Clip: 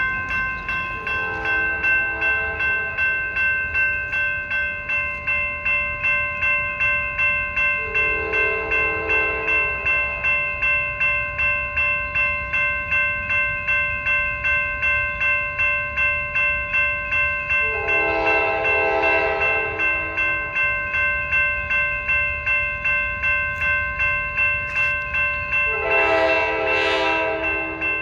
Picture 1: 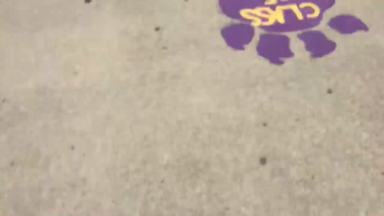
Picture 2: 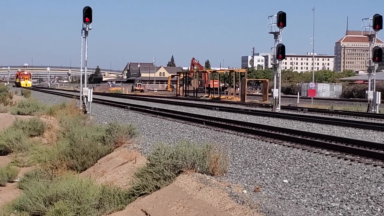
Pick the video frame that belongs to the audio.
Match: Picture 2